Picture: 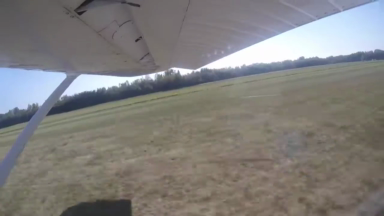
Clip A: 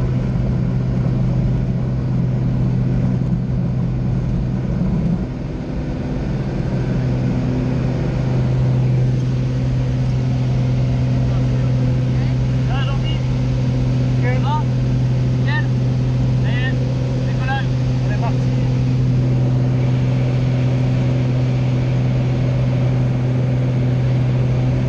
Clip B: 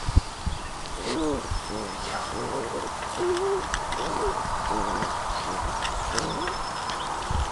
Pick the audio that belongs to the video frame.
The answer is A